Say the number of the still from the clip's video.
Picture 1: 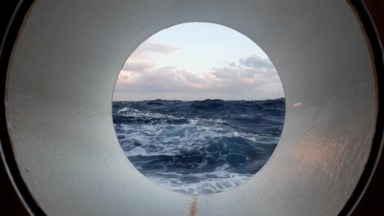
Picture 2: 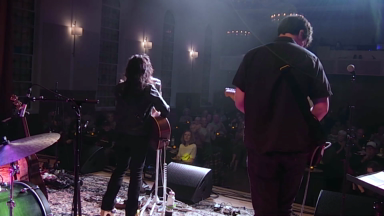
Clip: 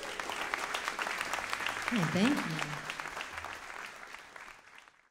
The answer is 2